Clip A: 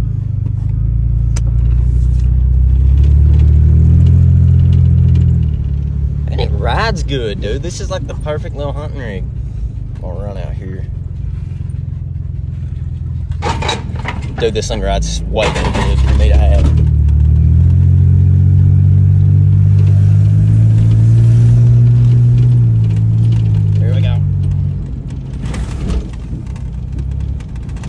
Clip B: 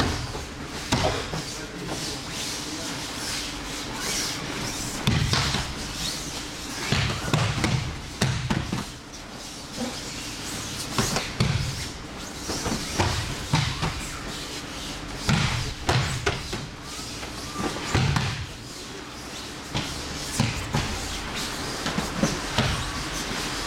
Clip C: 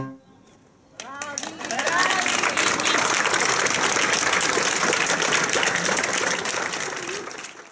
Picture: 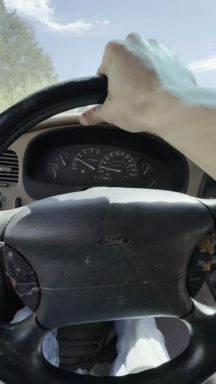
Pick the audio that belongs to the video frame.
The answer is A